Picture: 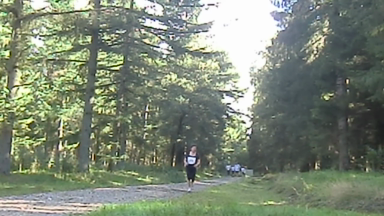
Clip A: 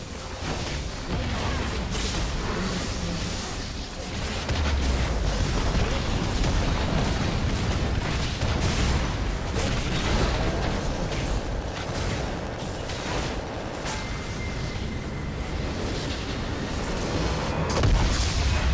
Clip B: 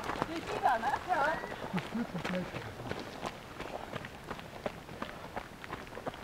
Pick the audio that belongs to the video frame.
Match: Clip B